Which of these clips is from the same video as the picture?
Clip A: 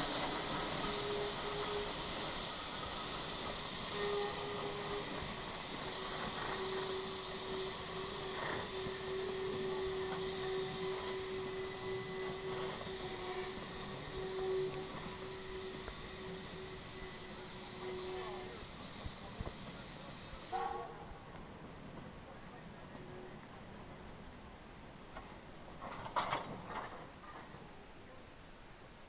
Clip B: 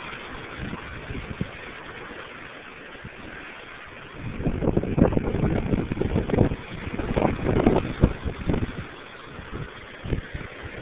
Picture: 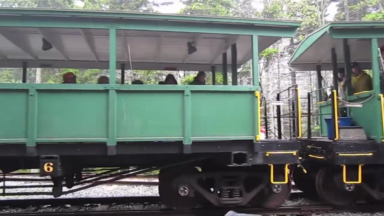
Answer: A